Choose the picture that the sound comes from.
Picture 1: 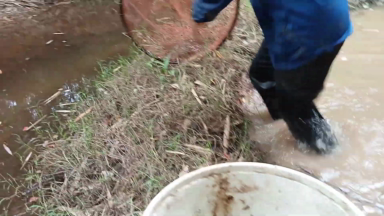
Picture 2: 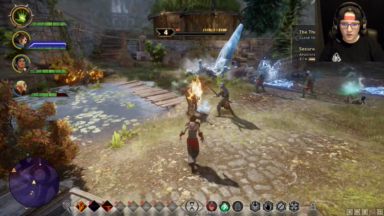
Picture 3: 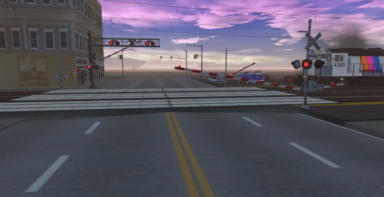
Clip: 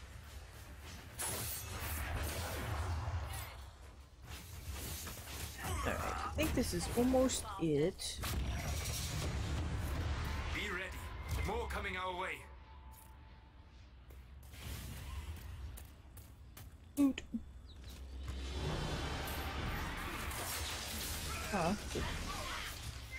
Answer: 2